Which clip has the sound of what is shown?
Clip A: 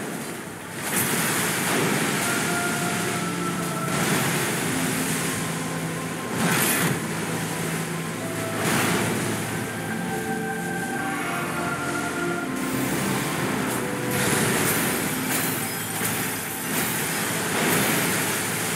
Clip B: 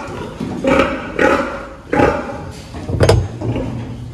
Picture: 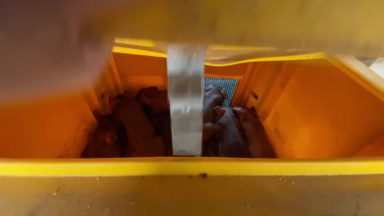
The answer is B